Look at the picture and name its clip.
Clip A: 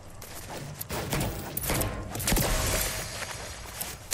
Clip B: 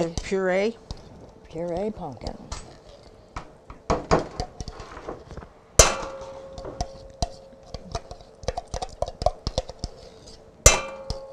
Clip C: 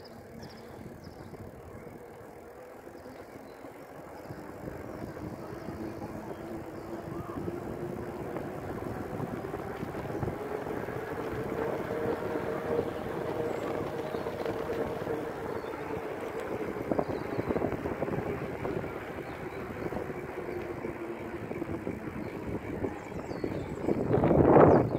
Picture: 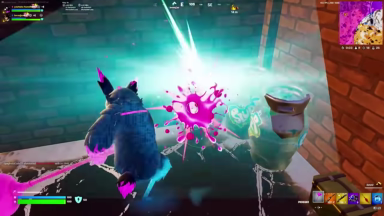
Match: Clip A